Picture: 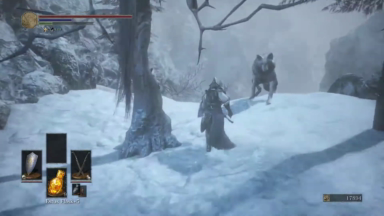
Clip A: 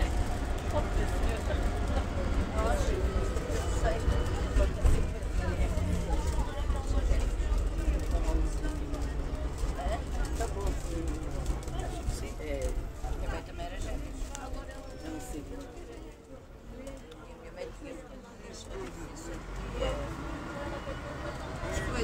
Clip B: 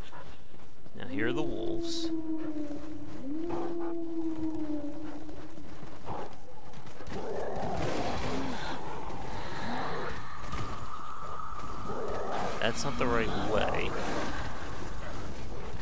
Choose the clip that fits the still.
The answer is B